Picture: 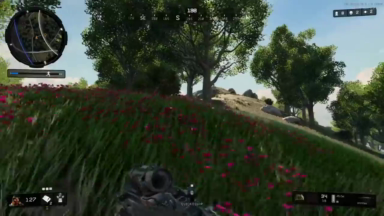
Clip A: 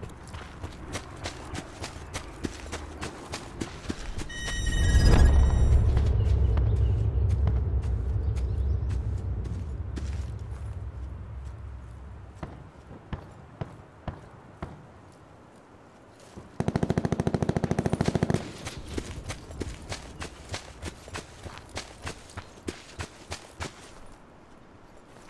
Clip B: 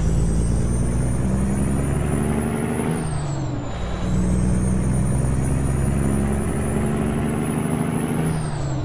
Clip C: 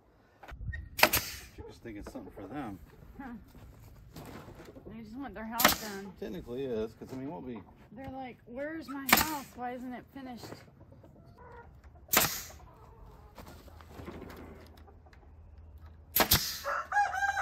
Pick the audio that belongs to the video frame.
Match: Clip A